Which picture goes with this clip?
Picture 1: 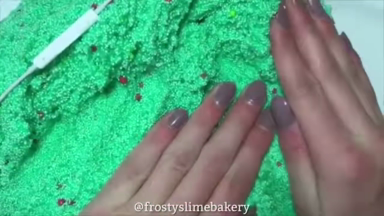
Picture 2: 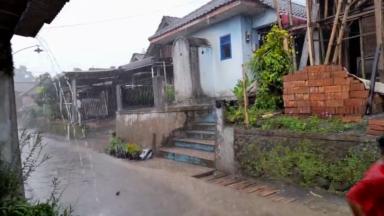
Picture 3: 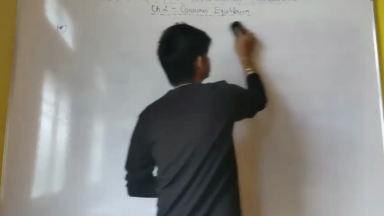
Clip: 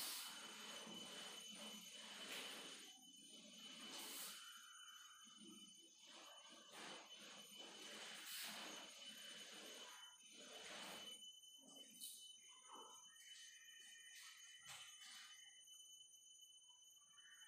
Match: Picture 3